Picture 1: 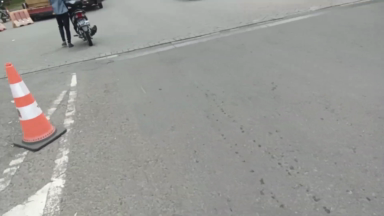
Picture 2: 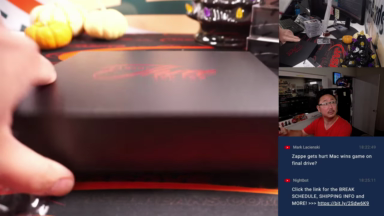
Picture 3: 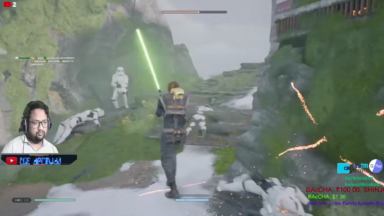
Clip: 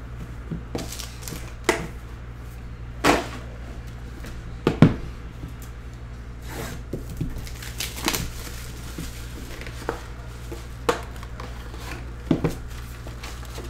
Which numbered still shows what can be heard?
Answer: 2